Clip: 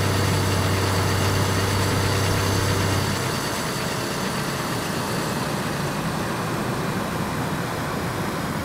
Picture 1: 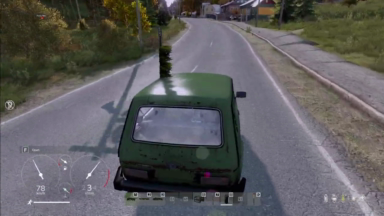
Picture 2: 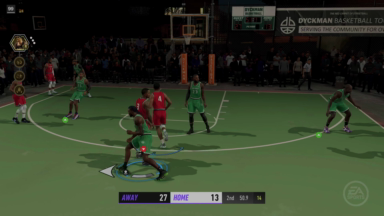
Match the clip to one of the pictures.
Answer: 1